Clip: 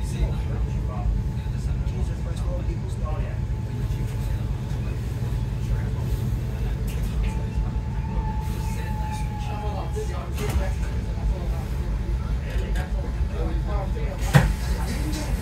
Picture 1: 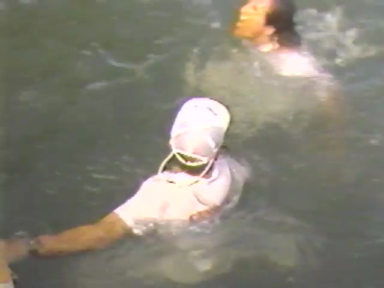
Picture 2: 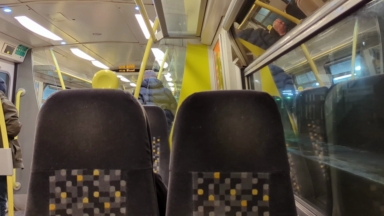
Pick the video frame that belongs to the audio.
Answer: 2